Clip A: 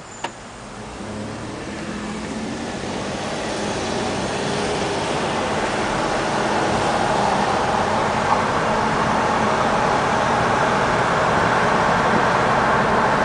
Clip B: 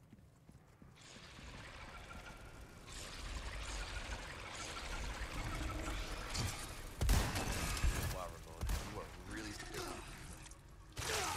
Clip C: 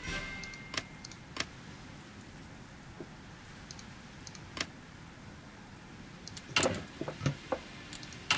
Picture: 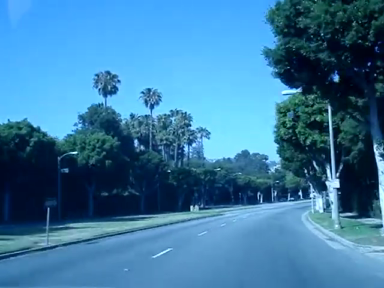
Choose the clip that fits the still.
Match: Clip A